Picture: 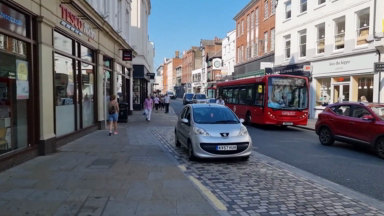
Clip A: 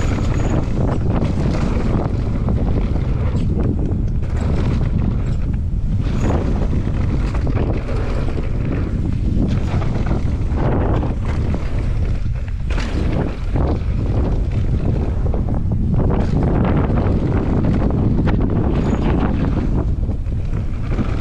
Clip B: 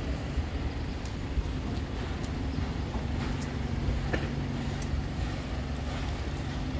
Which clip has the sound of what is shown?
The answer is B